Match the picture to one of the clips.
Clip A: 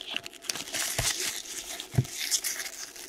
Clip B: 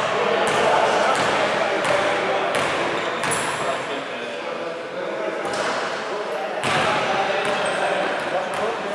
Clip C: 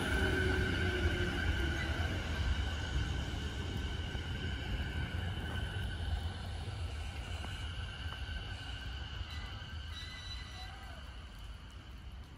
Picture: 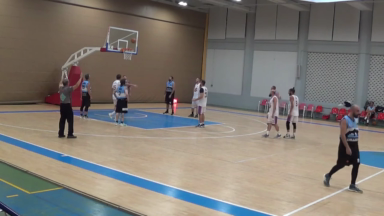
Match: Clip B